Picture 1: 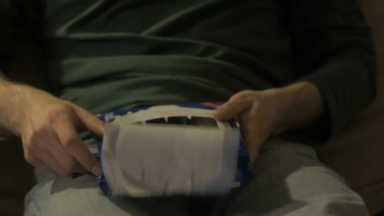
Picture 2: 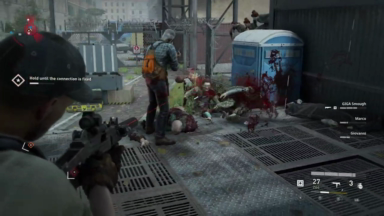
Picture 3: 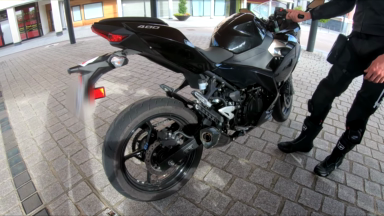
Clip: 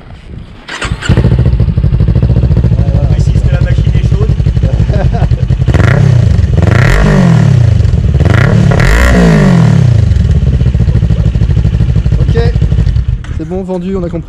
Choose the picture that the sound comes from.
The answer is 3